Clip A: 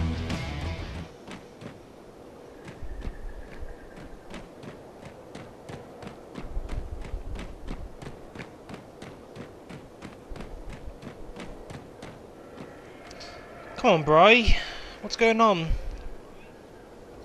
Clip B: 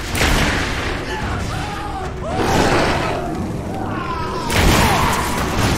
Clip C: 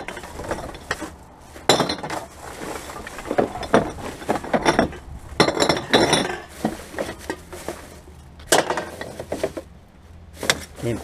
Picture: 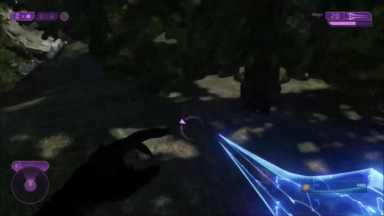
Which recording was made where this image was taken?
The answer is A